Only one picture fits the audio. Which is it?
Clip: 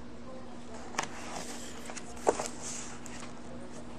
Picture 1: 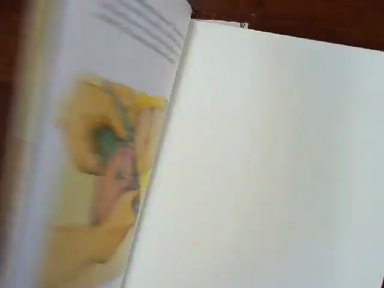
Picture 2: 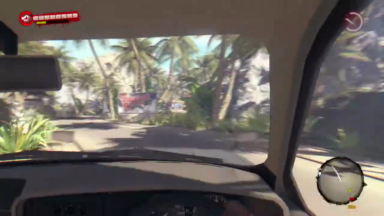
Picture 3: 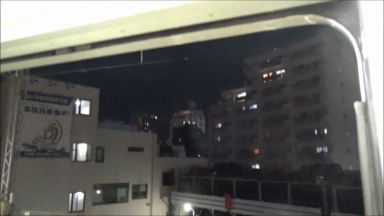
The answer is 1